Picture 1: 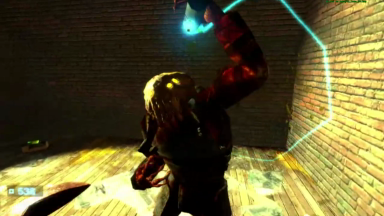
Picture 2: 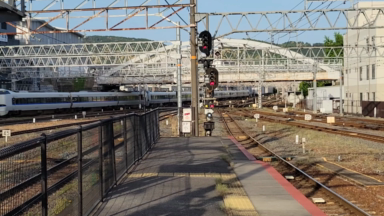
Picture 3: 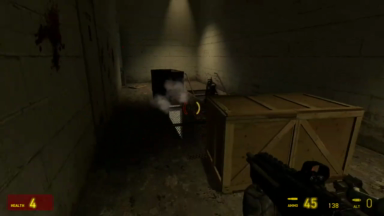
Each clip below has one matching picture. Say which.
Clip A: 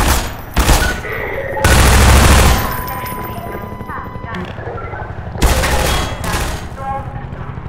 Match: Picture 3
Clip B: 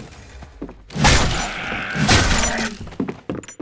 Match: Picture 1